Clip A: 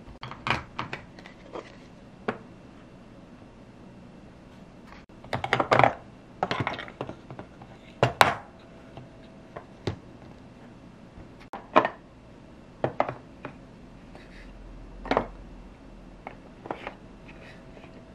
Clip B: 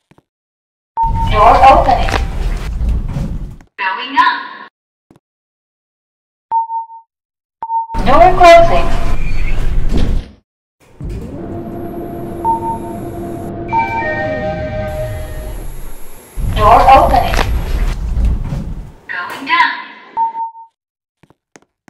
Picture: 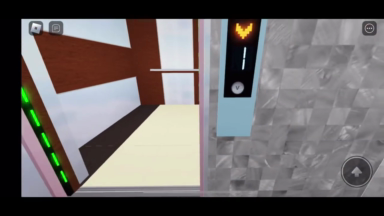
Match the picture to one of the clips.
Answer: B